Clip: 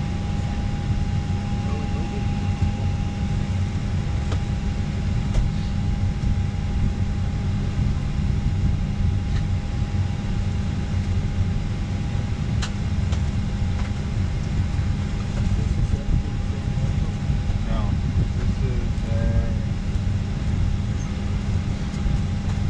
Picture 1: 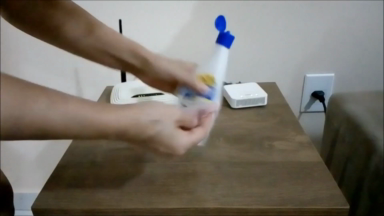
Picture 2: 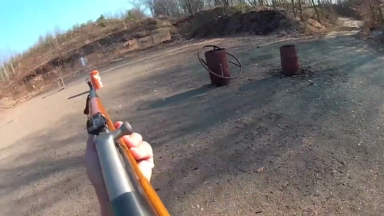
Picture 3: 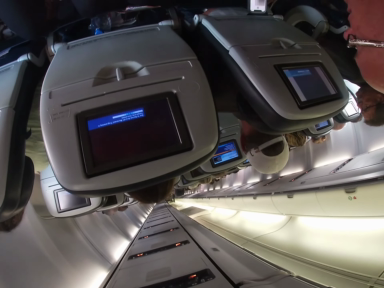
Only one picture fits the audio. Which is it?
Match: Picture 3